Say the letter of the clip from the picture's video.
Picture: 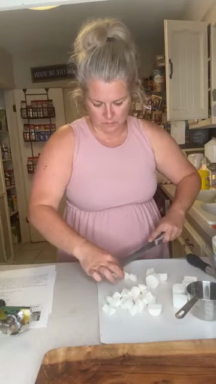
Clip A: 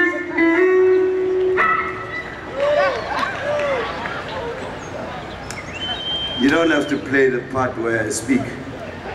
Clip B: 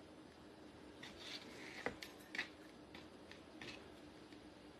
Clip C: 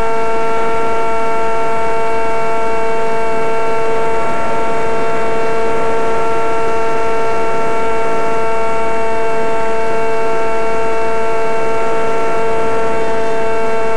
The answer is B